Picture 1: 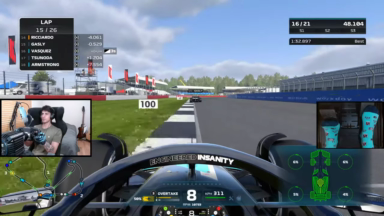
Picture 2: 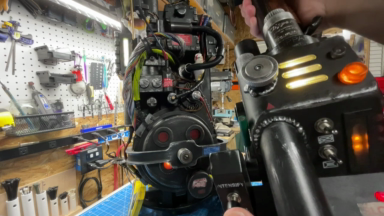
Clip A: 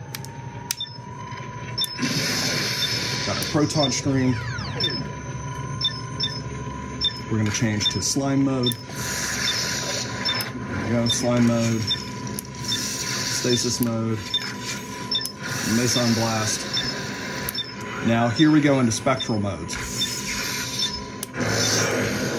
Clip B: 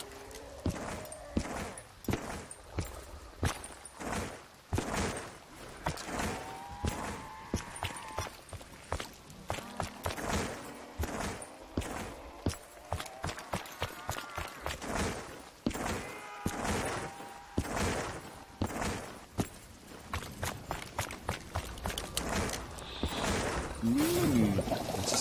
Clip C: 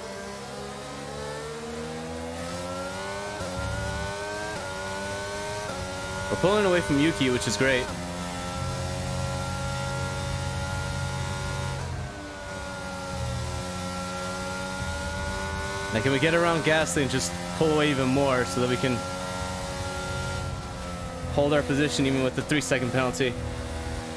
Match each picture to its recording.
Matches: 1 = C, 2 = A